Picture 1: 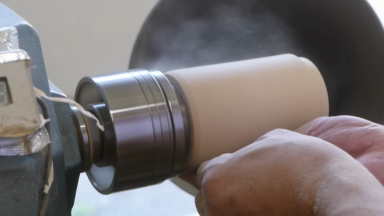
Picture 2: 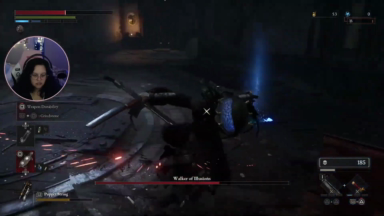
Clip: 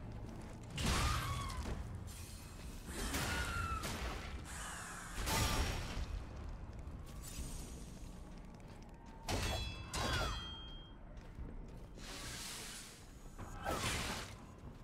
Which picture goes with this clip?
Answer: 2